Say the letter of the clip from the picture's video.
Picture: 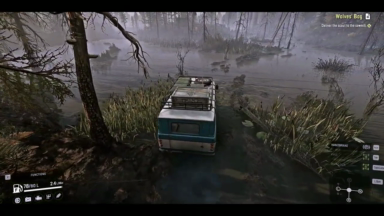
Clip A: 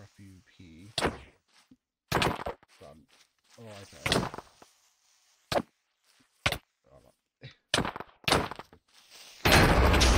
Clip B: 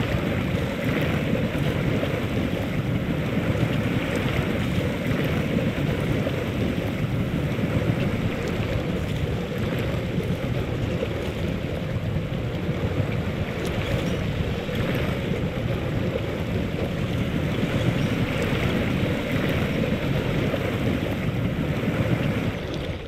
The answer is B